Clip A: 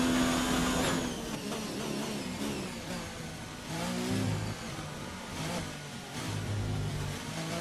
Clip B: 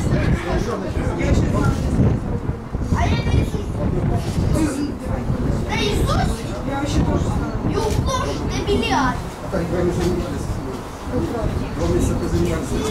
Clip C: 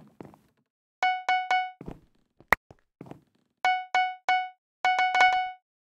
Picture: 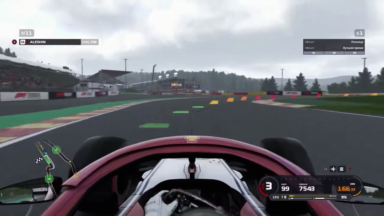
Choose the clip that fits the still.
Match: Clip A